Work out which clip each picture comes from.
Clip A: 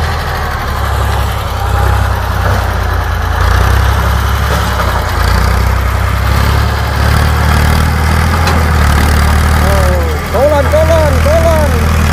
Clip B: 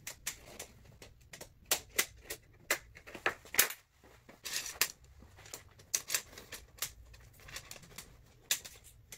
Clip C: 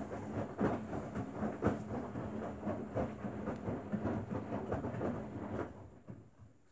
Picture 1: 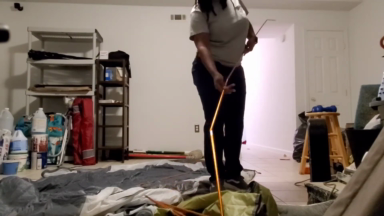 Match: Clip B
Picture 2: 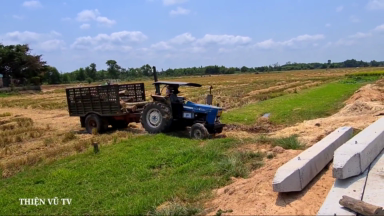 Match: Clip A